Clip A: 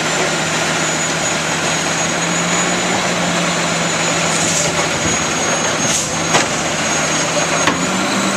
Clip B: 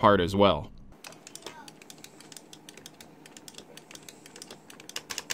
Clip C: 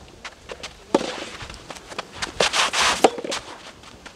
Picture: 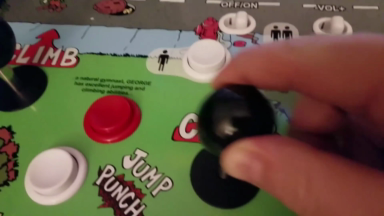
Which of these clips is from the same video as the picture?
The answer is B